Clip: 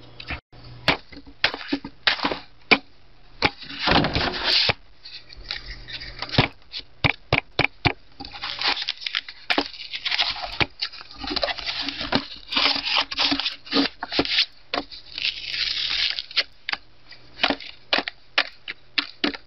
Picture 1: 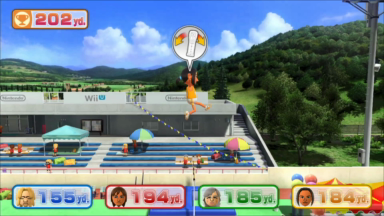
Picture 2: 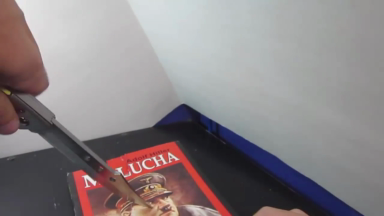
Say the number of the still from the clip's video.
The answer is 2